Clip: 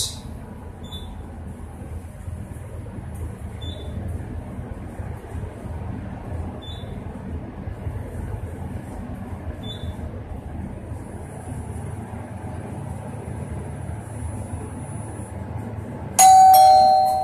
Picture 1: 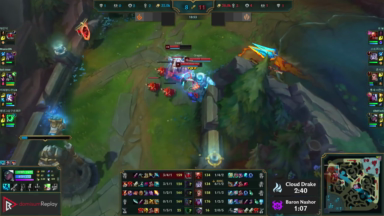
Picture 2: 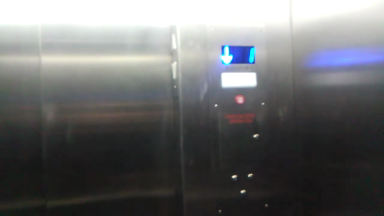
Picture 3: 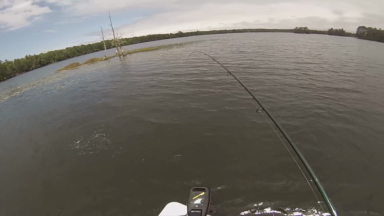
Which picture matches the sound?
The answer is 2